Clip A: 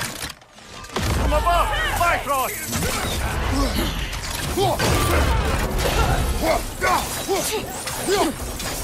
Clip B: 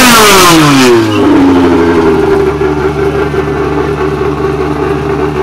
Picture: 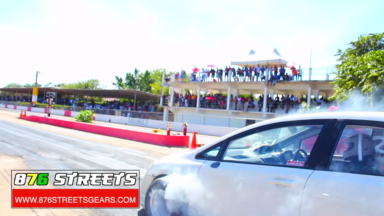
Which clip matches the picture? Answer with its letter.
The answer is B